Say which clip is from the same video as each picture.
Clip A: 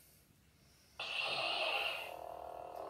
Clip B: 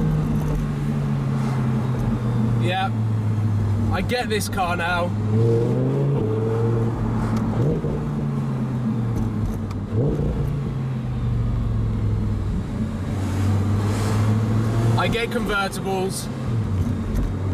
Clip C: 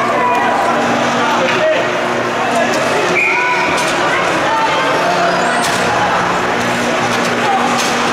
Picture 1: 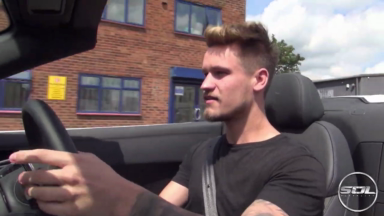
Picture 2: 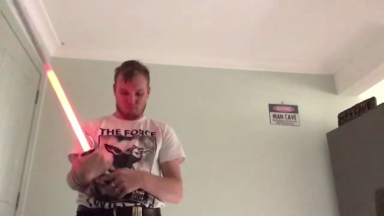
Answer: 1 B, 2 A